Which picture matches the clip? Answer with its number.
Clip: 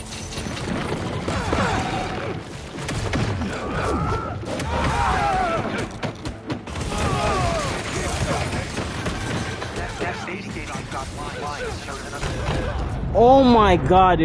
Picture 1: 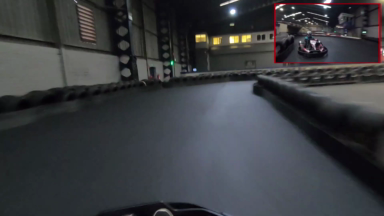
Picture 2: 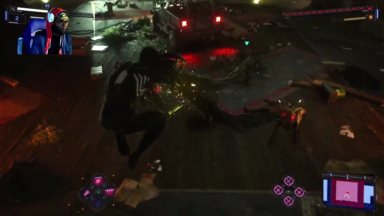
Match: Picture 2